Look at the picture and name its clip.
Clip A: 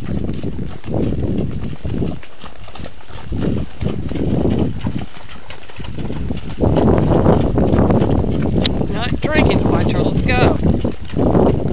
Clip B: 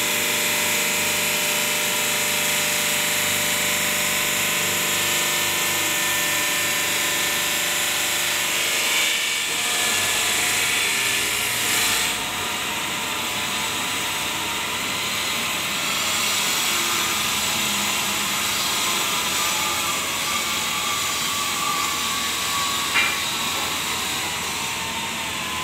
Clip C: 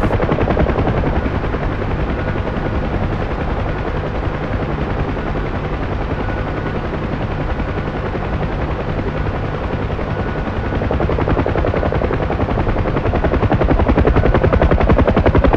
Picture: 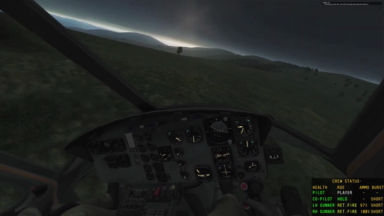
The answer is C